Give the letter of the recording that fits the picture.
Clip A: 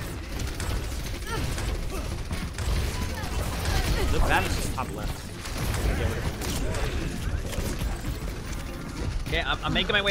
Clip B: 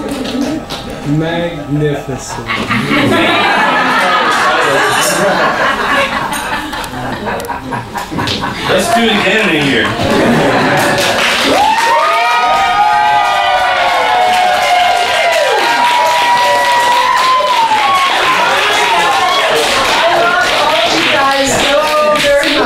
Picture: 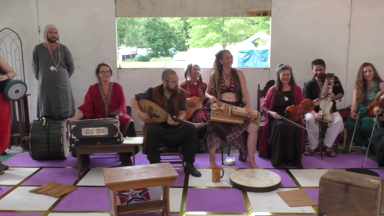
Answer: B